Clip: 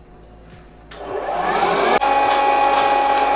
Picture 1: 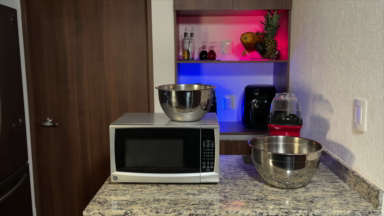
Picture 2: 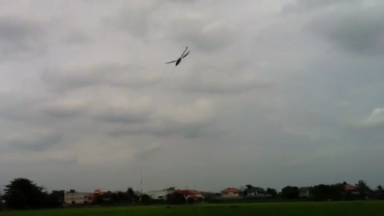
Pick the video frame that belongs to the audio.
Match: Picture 1